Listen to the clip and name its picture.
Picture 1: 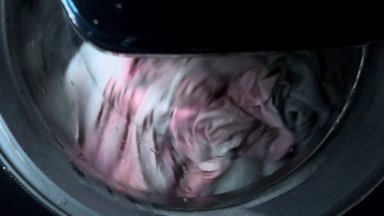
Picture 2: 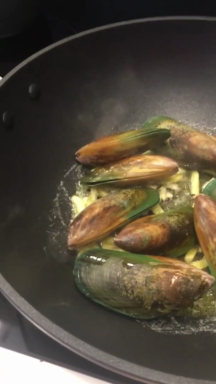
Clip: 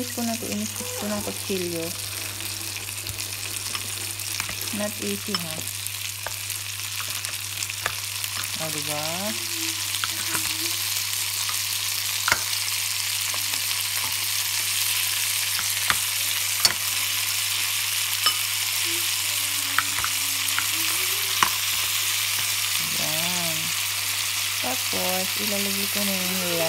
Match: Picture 2